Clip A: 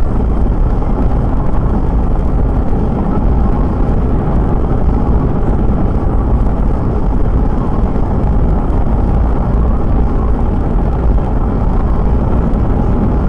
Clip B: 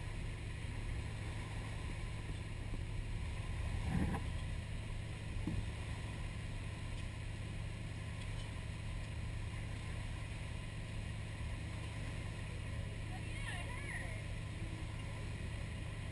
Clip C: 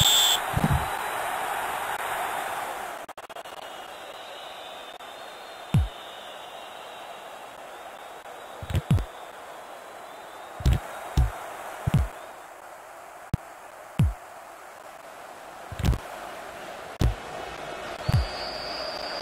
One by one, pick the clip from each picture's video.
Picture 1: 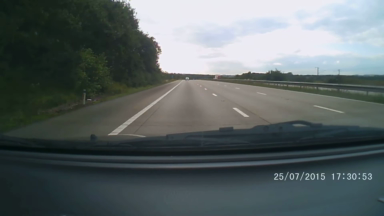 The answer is A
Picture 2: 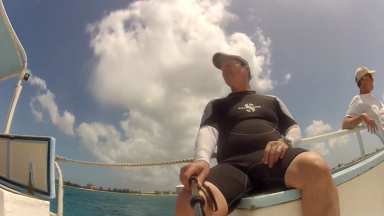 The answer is B